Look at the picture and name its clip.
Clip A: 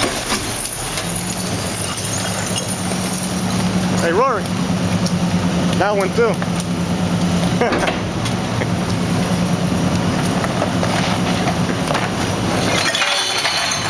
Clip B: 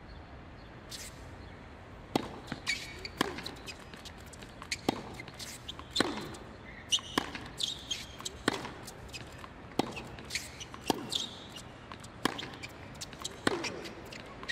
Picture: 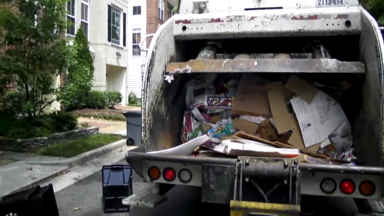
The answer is A